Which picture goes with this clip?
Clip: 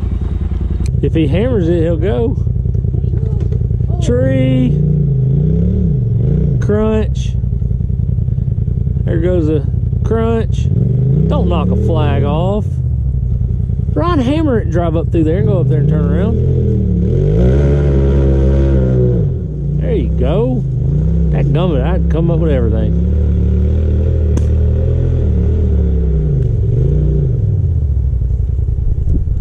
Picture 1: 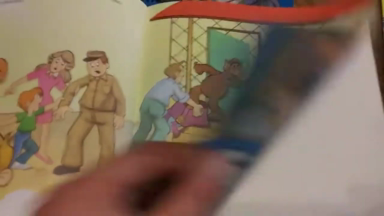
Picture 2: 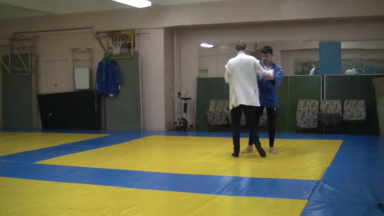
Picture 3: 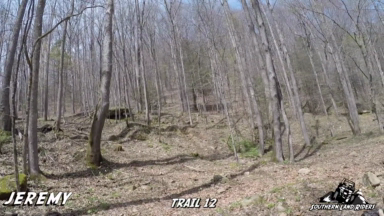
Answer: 3